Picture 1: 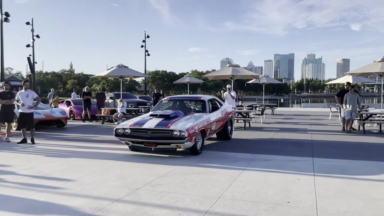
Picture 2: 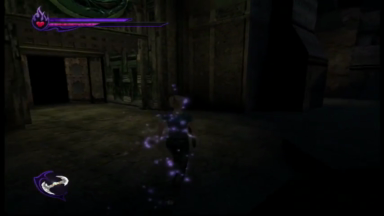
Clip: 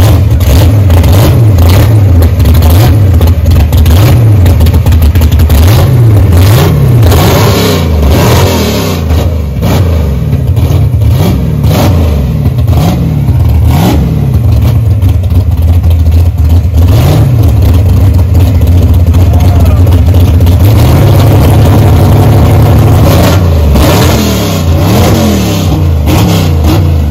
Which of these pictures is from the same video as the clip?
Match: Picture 1